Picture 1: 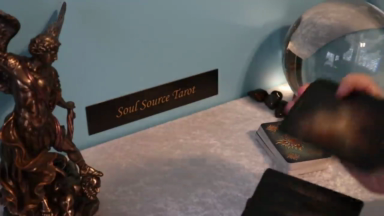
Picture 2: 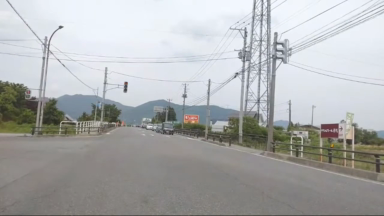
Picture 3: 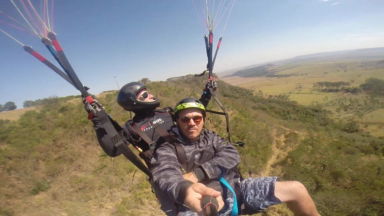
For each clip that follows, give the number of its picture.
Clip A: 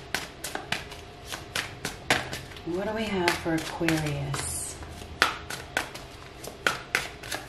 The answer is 1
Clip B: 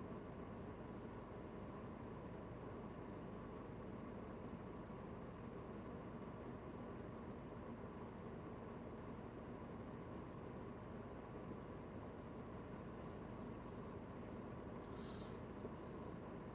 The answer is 2